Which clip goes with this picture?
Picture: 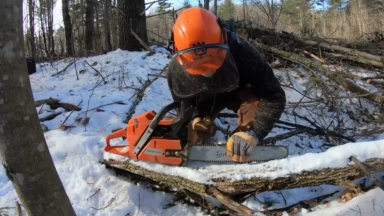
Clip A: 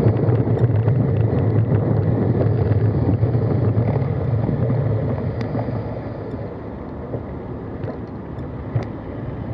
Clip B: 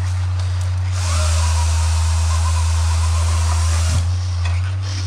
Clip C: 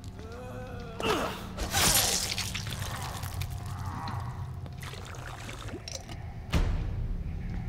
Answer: B